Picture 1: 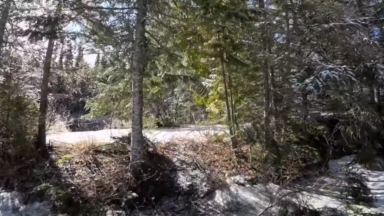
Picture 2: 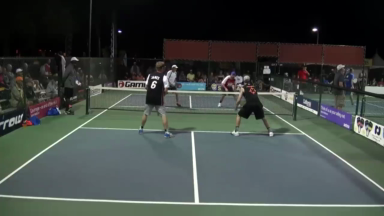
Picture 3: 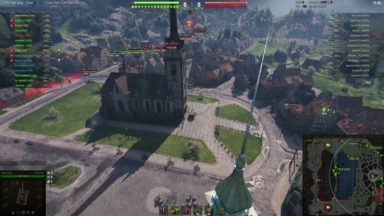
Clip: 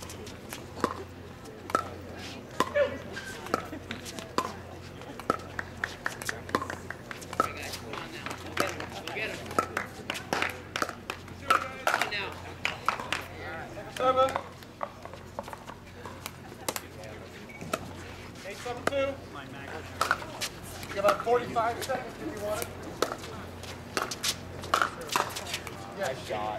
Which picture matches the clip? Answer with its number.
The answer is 2